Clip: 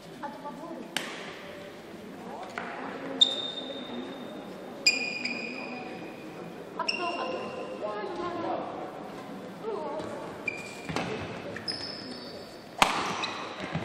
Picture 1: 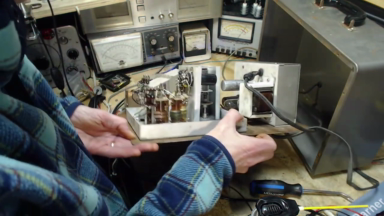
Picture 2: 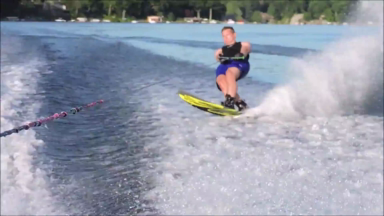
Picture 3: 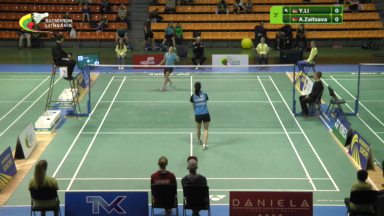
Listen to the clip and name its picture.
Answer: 3